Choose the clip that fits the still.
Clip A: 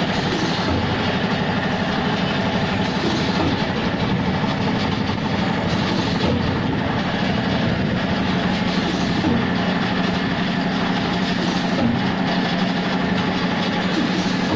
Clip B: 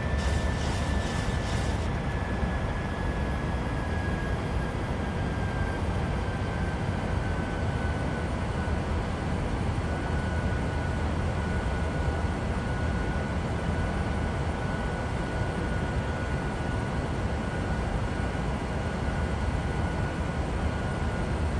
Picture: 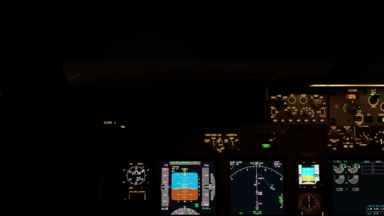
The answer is B